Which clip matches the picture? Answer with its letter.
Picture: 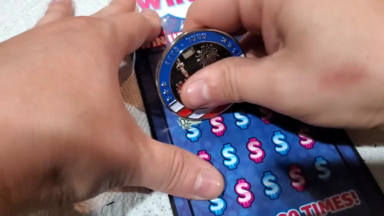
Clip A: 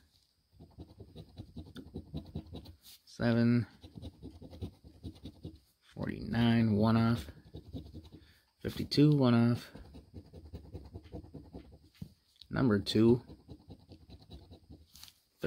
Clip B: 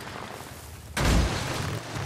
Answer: A